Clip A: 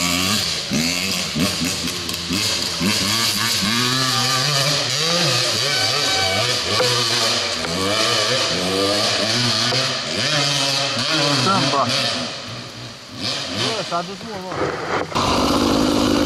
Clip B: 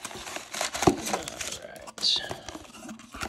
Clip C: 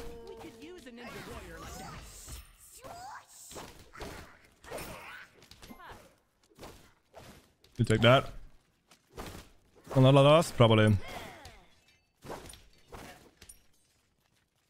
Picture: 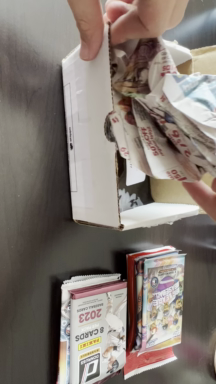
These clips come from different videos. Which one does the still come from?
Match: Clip B